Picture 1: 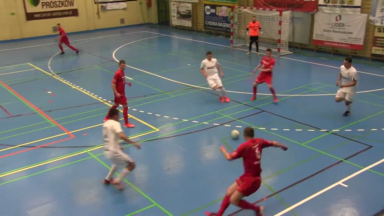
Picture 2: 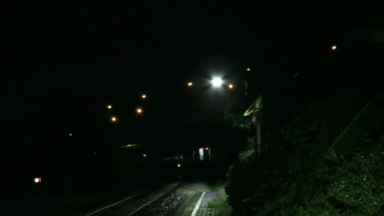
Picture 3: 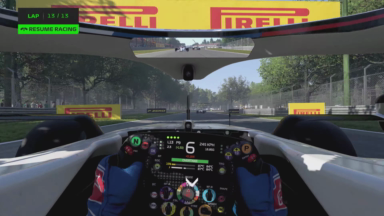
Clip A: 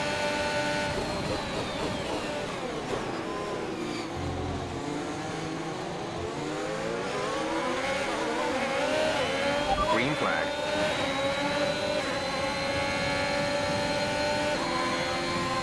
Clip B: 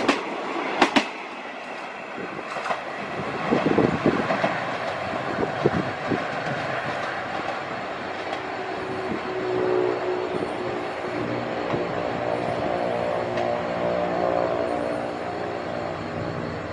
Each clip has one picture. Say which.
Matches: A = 3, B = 2